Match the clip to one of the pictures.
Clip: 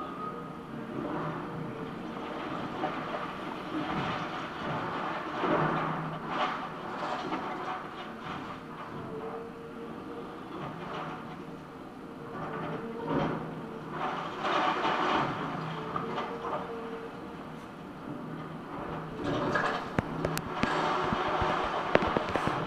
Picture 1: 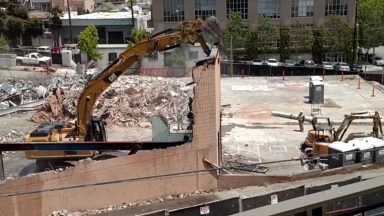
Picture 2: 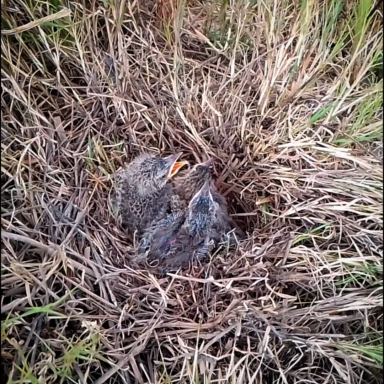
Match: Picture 1